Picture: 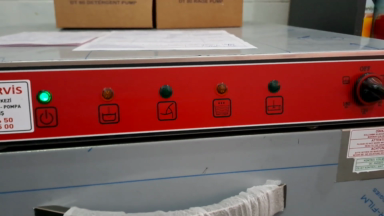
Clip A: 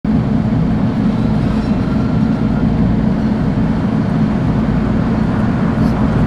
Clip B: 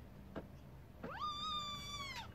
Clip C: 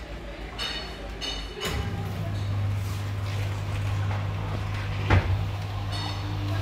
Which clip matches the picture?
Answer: C